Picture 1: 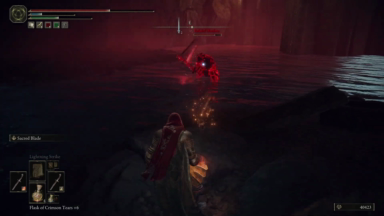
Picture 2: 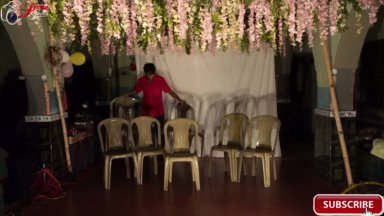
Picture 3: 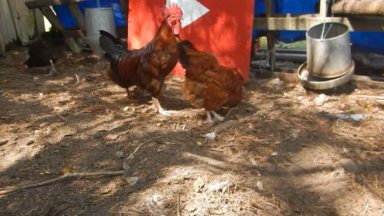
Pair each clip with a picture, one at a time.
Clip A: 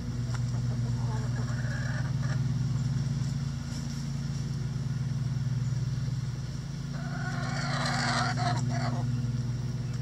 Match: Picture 3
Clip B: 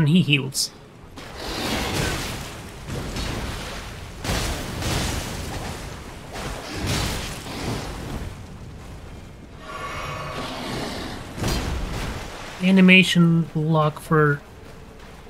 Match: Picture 1